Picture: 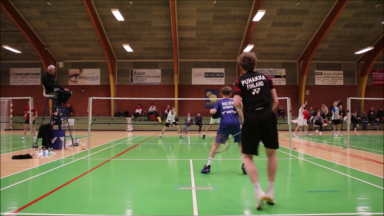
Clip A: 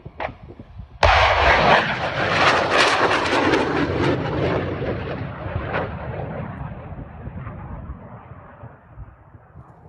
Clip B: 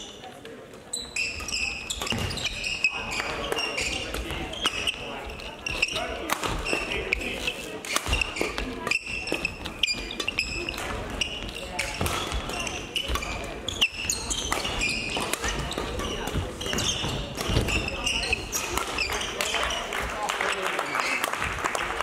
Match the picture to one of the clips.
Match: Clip B